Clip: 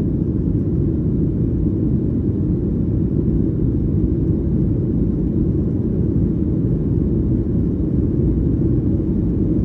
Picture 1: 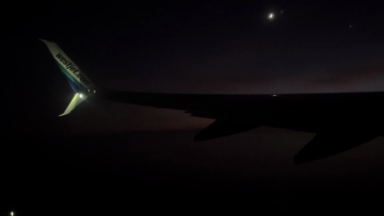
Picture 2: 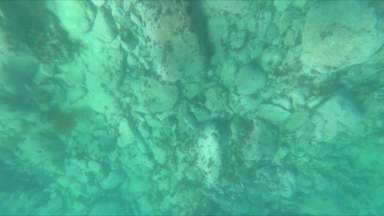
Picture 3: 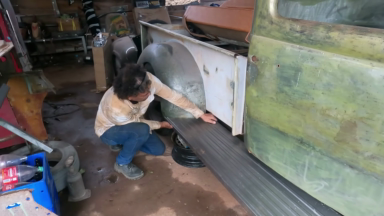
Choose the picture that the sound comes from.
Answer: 1